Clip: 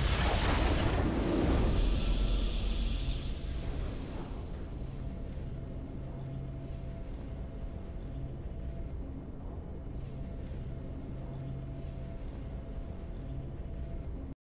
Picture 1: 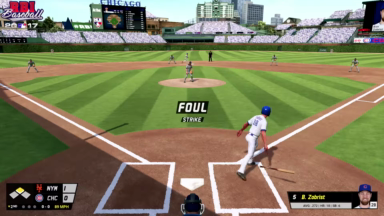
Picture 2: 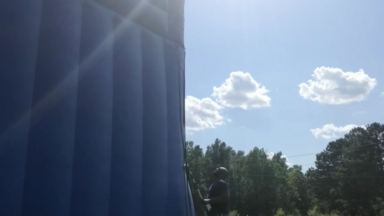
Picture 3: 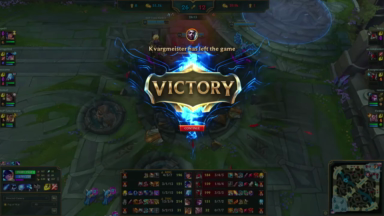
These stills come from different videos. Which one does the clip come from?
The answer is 3